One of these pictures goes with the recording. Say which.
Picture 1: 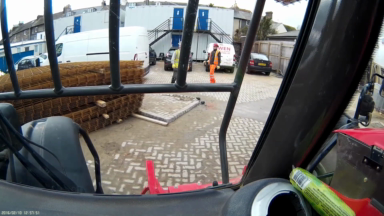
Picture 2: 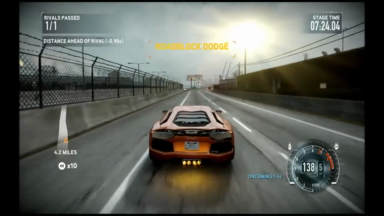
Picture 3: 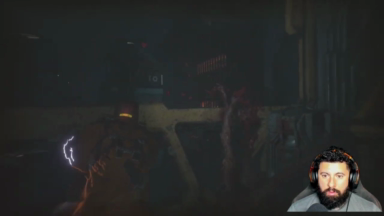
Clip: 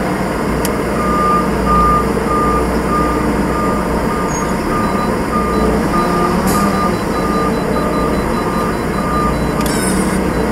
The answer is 1